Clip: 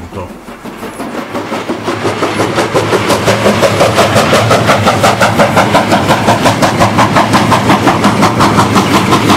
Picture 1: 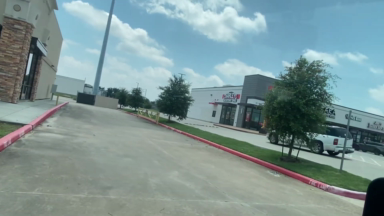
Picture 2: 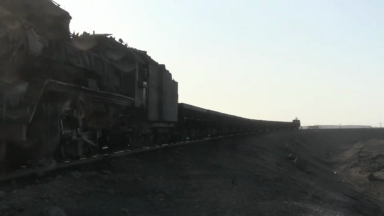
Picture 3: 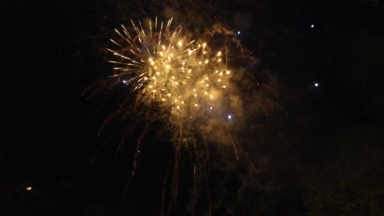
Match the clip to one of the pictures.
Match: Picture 2